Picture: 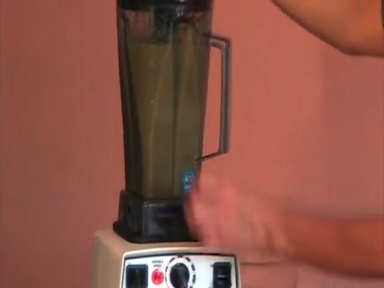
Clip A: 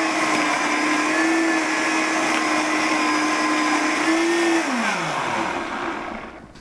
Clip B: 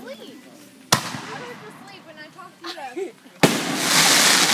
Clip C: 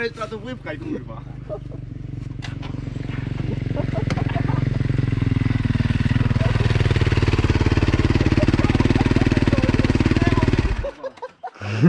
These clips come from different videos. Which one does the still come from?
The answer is A